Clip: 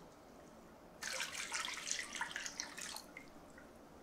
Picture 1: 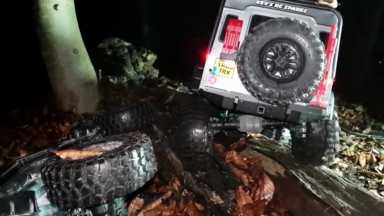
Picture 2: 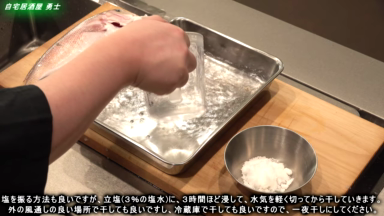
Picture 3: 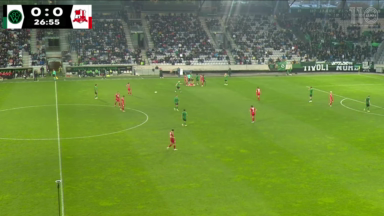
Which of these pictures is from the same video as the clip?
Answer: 2